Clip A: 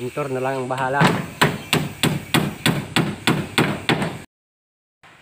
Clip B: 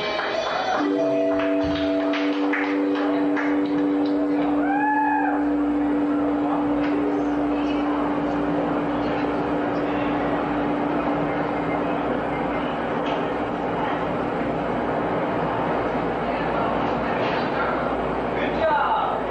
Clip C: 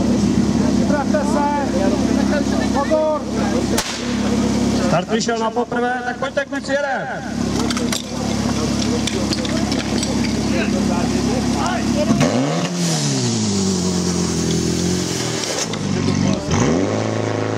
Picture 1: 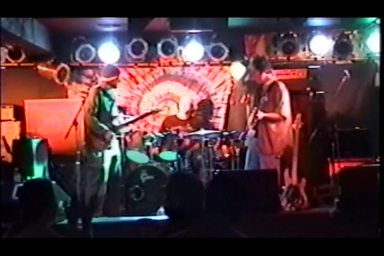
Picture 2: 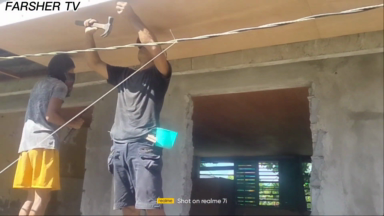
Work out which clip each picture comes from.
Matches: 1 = B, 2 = A